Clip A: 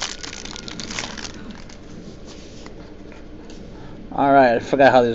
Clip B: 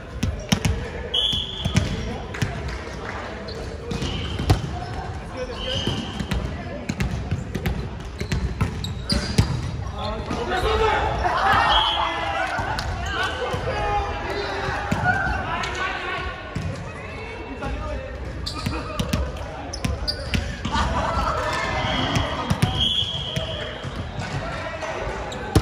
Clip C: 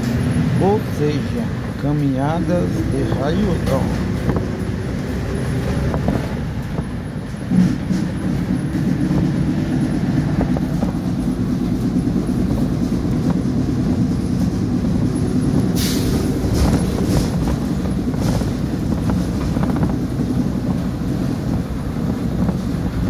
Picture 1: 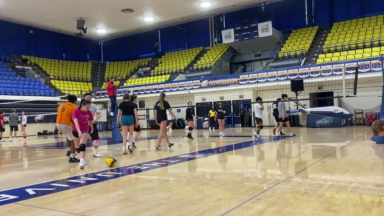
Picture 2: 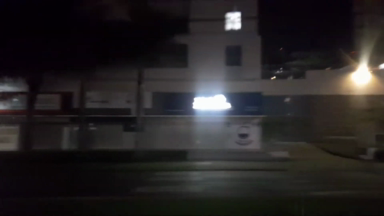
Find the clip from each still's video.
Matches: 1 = B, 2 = C